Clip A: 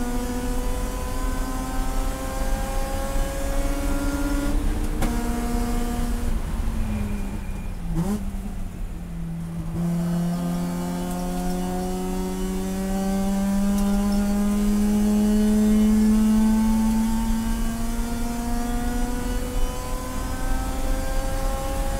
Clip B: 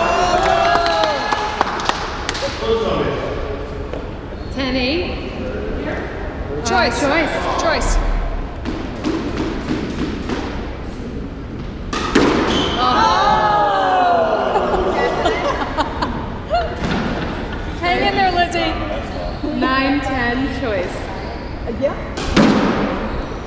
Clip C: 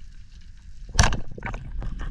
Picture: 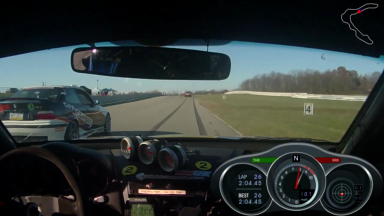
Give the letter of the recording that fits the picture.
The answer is A